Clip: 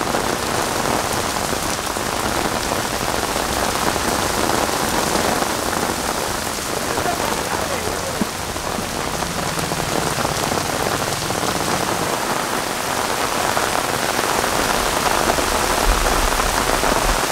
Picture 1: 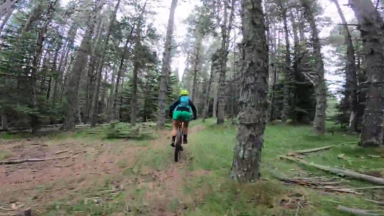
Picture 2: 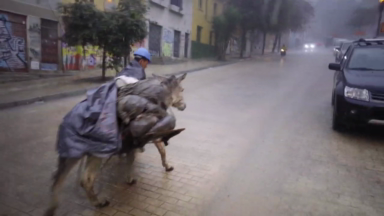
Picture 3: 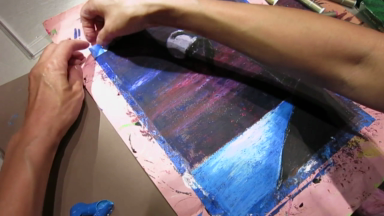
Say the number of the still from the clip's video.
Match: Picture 2